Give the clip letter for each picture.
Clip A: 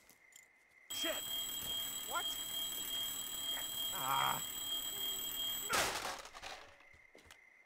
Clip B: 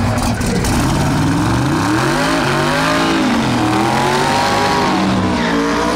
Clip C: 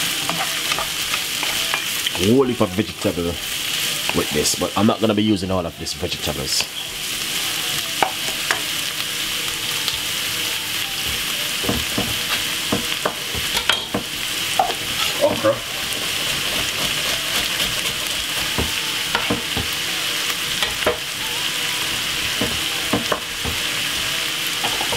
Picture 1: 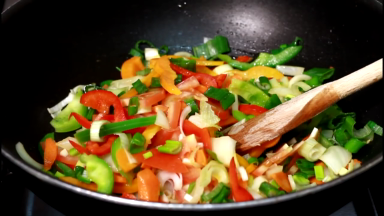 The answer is C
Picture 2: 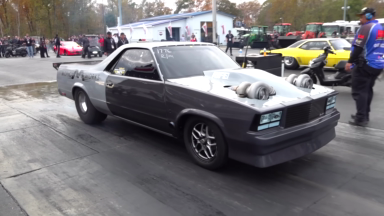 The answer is B